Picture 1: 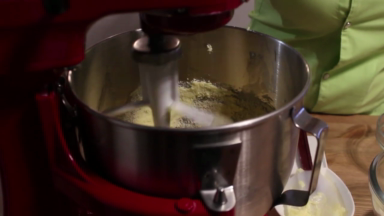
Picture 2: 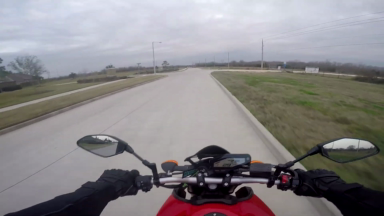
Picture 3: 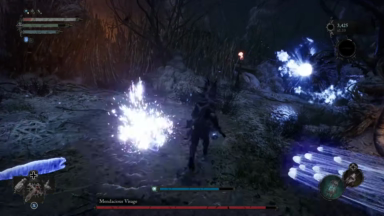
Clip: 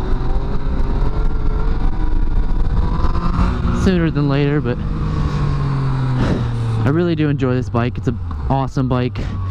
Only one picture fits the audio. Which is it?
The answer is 2